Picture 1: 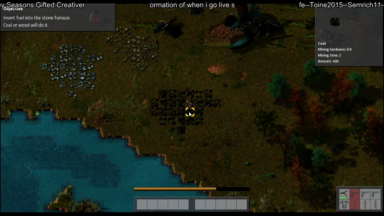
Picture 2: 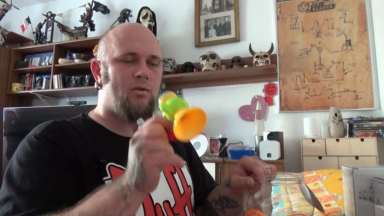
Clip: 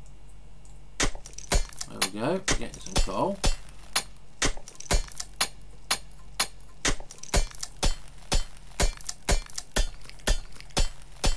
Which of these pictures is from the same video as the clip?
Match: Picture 1